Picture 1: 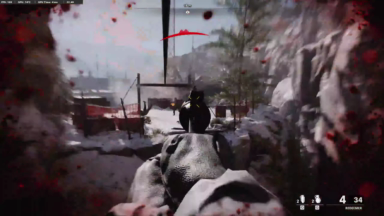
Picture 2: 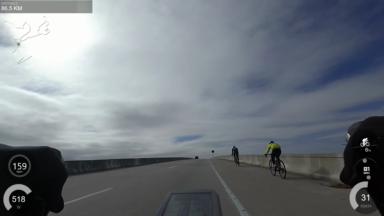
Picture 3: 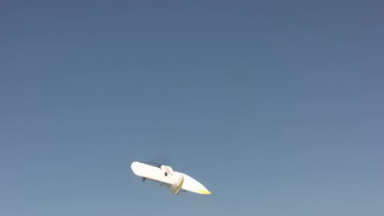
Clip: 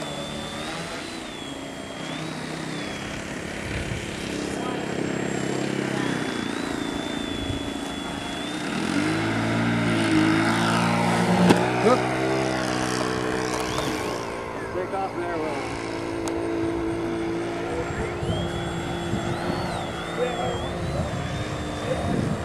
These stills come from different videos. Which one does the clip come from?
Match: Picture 3